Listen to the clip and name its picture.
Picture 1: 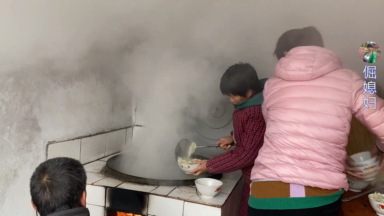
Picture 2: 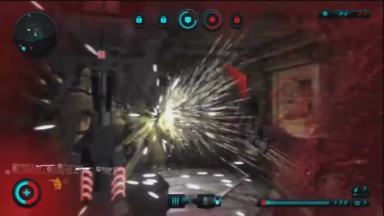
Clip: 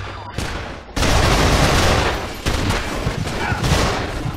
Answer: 2